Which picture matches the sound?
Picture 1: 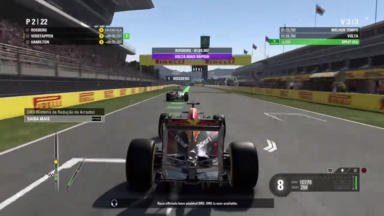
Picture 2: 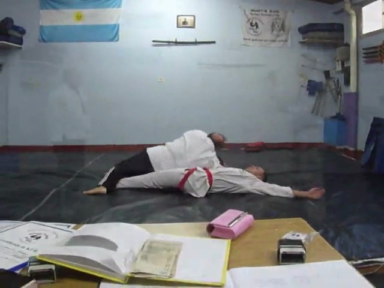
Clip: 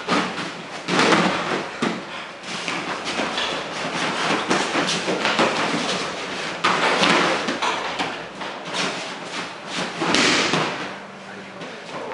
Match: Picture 2